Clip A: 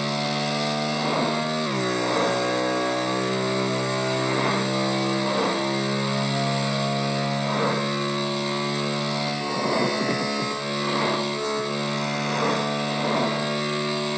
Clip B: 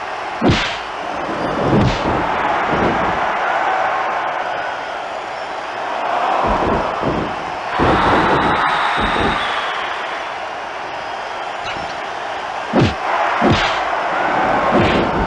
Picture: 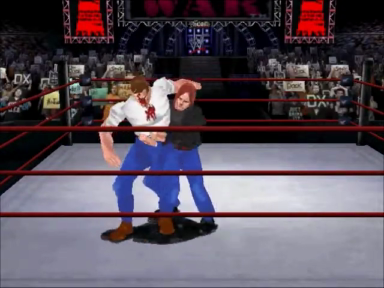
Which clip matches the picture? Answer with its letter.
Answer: B